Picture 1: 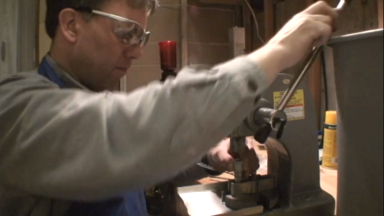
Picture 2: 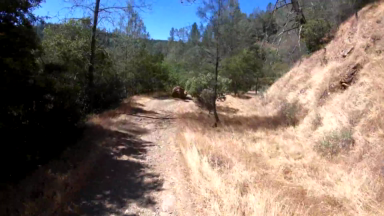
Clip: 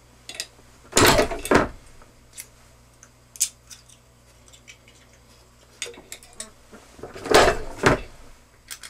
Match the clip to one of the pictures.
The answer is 1